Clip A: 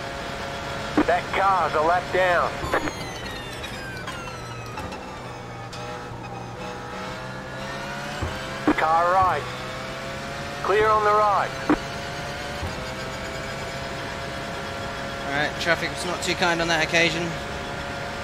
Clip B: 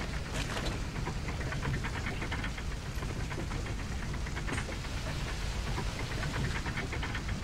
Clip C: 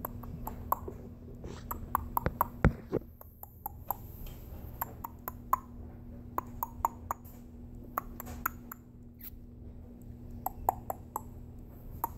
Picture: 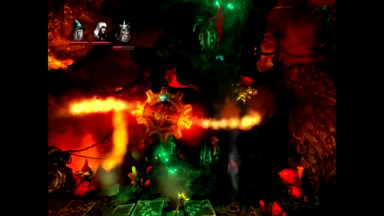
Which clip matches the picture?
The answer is B